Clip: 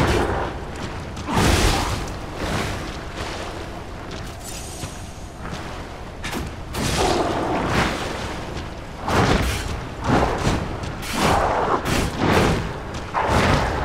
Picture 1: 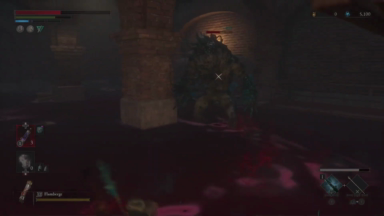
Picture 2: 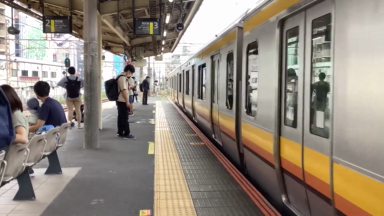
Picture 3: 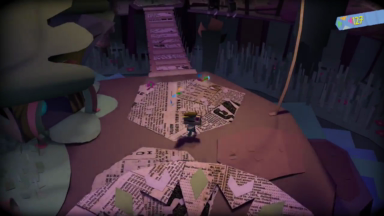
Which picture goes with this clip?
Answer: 1